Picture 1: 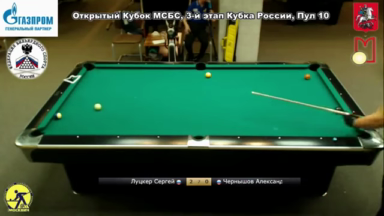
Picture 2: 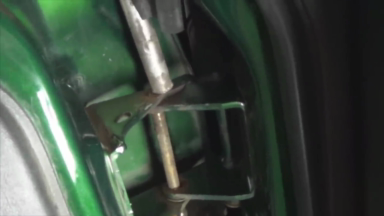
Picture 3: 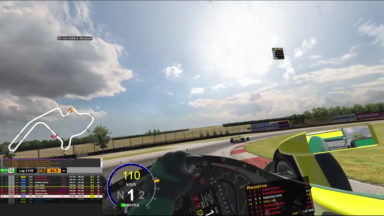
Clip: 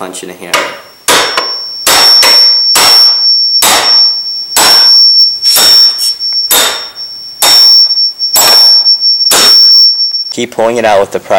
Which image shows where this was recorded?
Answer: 2